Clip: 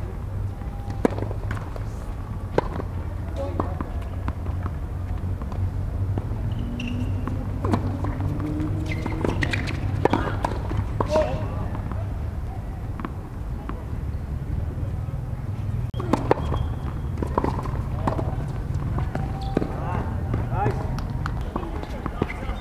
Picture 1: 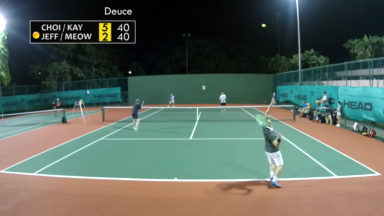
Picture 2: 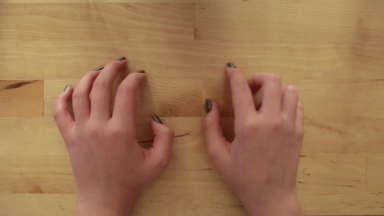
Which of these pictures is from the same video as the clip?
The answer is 1